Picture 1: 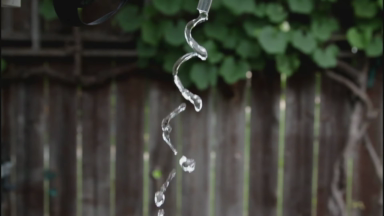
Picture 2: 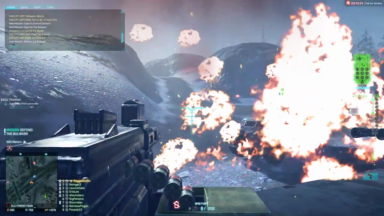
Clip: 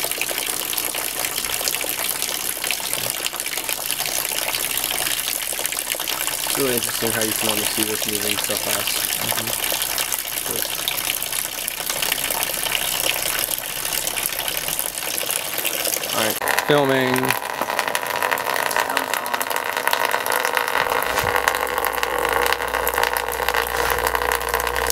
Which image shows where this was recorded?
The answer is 1